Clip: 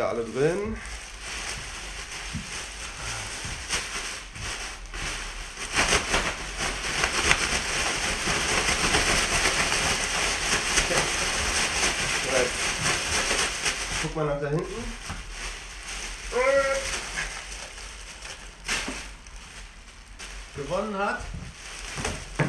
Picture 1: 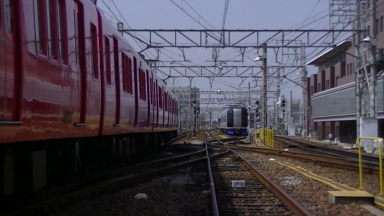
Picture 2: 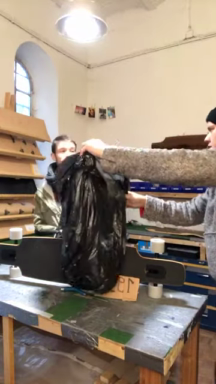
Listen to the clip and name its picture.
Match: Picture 2